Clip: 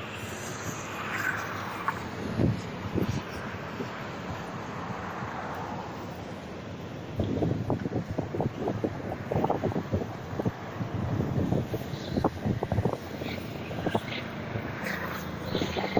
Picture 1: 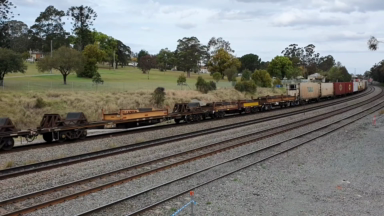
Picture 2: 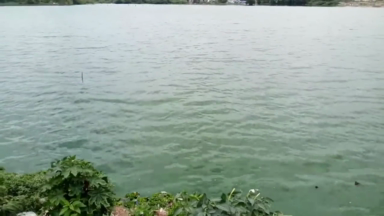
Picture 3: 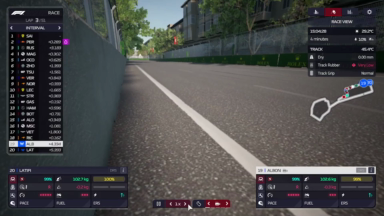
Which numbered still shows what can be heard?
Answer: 2